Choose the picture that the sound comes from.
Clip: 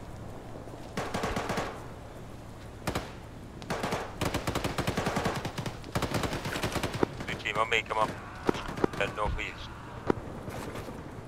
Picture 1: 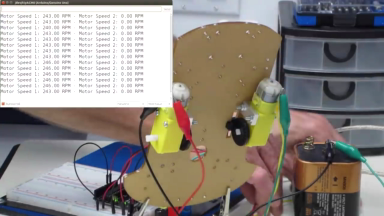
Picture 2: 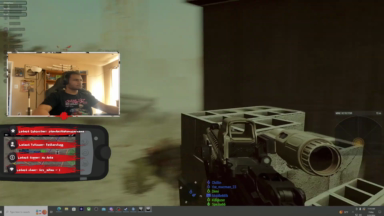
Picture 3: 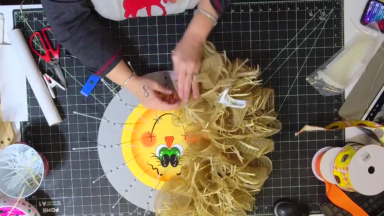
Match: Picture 2